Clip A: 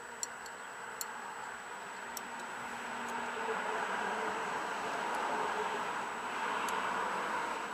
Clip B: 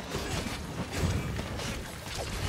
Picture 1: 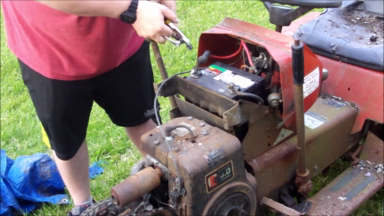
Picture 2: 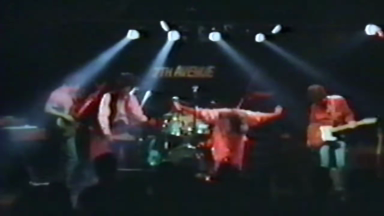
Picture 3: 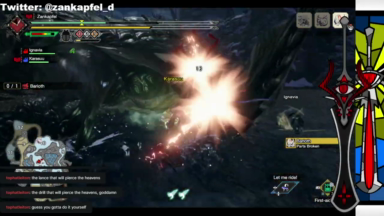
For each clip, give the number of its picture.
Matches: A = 1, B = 3